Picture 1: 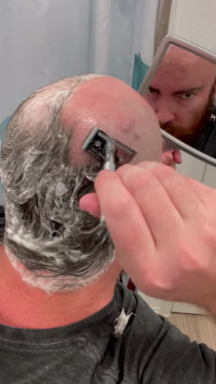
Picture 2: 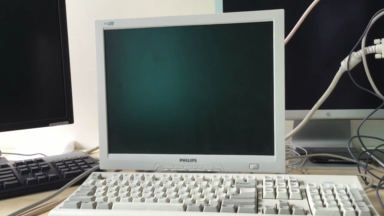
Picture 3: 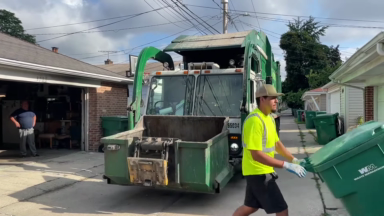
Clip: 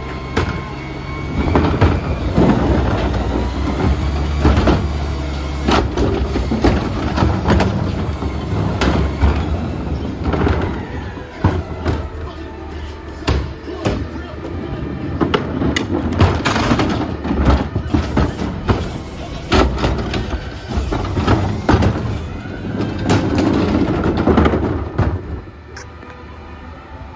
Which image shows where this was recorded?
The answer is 3